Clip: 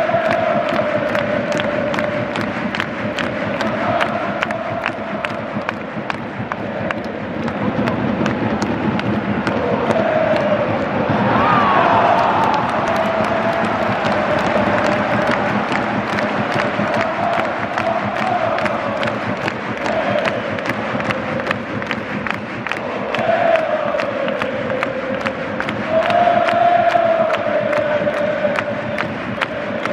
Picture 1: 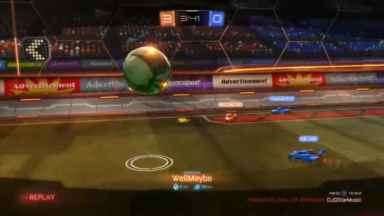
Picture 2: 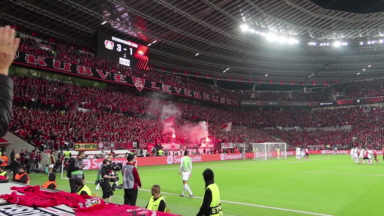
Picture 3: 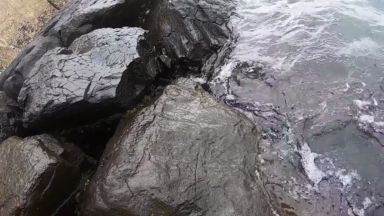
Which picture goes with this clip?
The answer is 2